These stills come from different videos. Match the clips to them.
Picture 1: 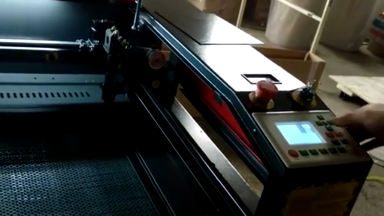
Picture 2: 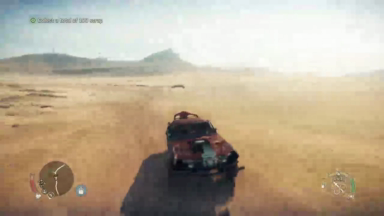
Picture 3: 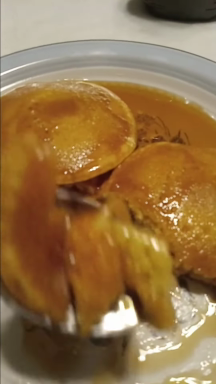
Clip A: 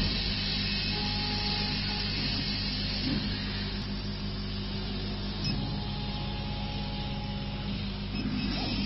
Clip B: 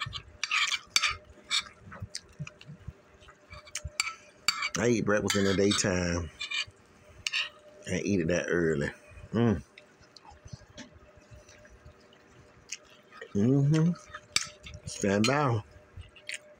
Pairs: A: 1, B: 3